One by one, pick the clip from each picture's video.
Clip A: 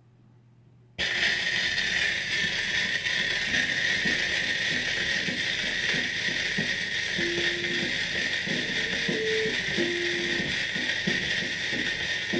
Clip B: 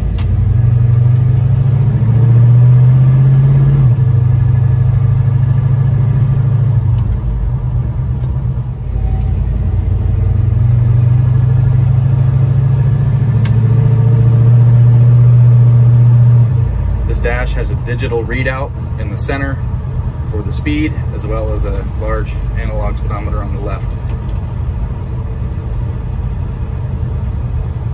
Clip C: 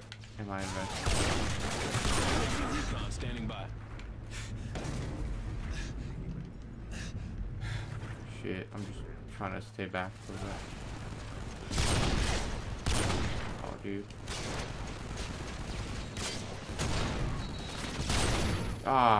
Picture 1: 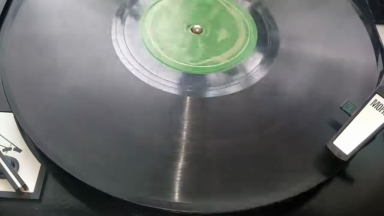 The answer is A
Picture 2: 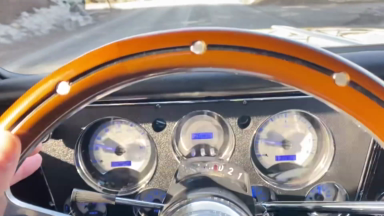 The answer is B